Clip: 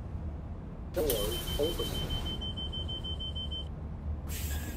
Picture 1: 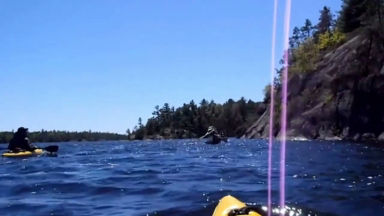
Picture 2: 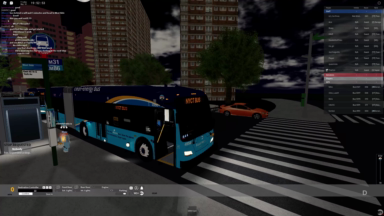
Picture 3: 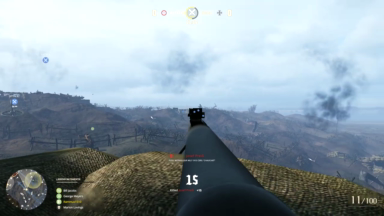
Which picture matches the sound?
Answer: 2